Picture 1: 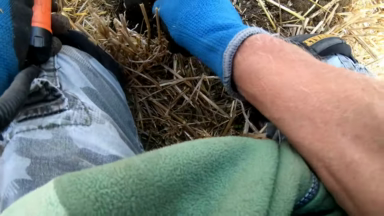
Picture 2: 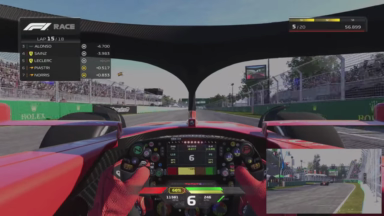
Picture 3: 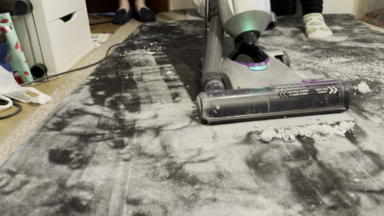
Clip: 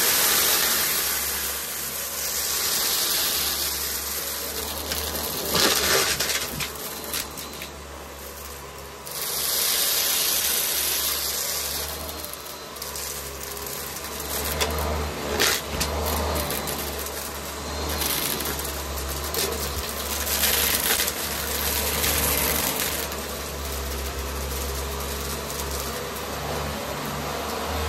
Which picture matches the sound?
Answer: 3